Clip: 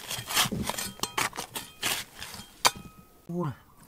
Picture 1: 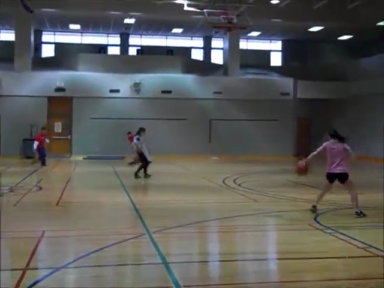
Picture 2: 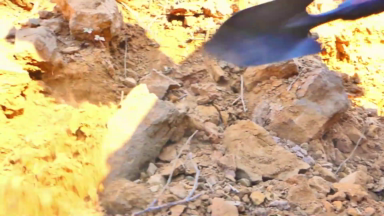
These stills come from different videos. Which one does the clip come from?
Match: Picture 2